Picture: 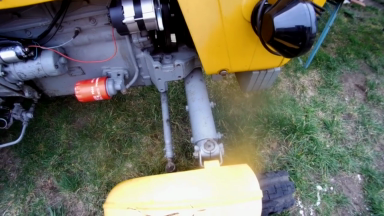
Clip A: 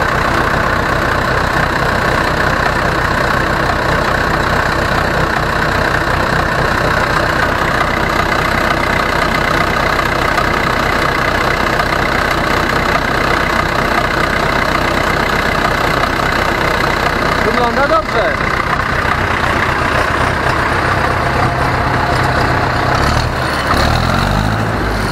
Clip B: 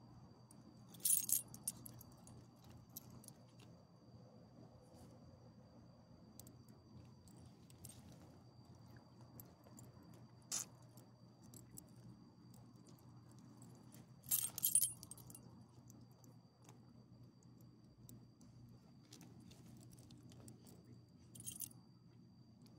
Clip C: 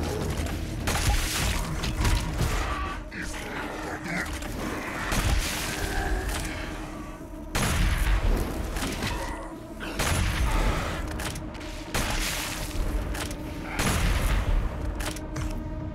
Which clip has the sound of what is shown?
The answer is A